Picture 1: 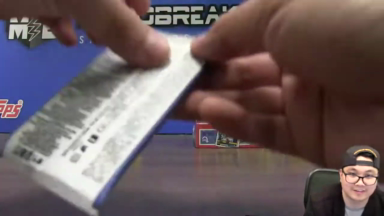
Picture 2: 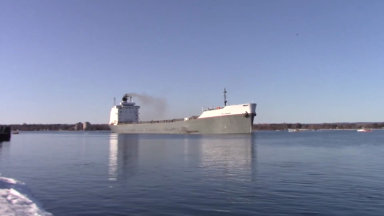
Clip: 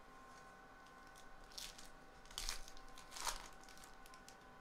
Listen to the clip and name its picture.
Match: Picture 1